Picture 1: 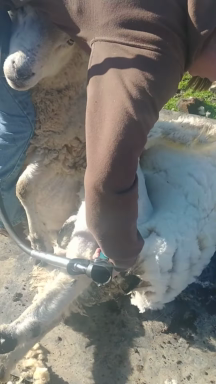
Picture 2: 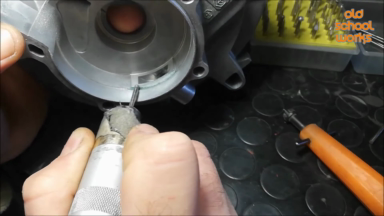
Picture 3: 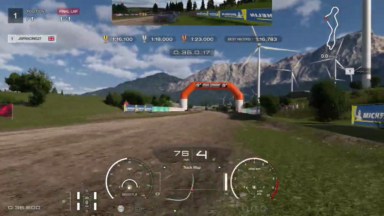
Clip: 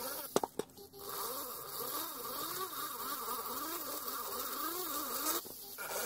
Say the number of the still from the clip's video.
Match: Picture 2